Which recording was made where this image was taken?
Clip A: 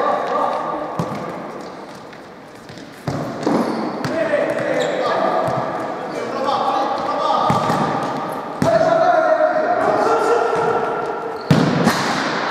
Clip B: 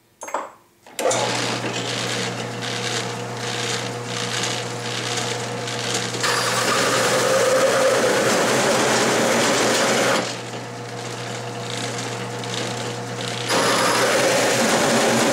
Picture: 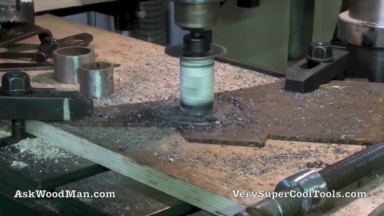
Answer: B